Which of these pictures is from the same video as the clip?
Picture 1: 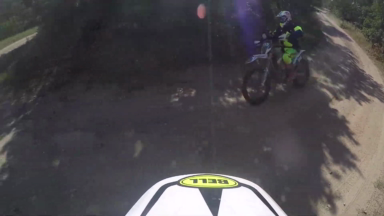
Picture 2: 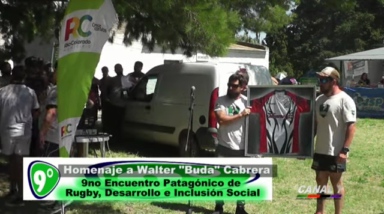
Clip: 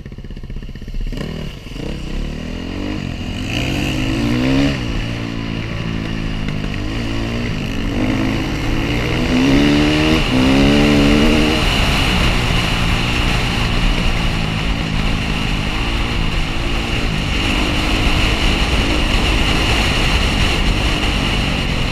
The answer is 1